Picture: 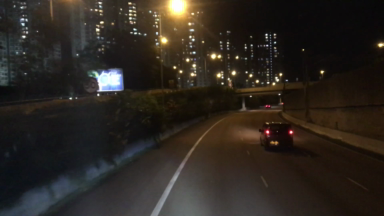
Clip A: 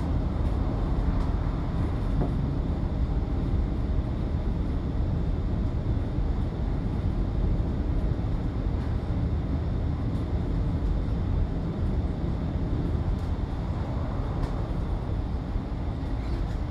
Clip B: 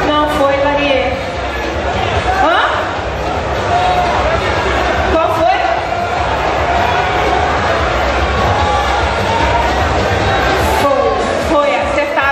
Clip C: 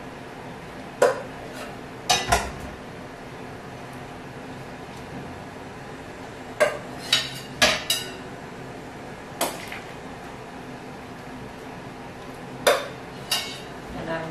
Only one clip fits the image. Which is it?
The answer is A